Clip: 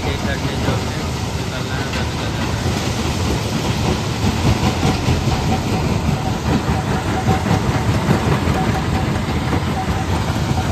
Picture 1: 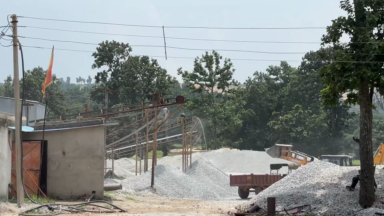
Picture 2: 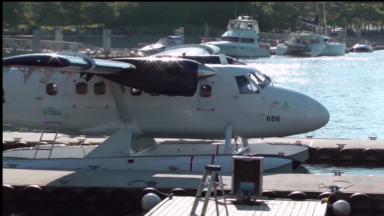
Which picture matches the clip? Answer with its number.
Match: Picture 1